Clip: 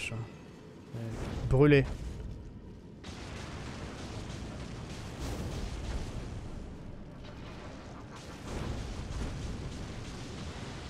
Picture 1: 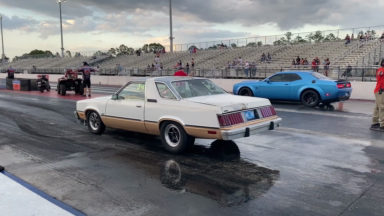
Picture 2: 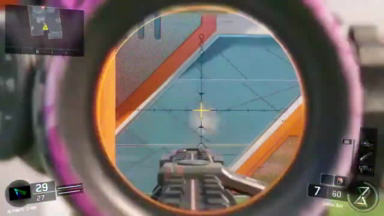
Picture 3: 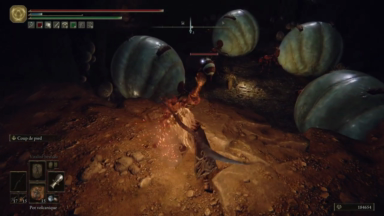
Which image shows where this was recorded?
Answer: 3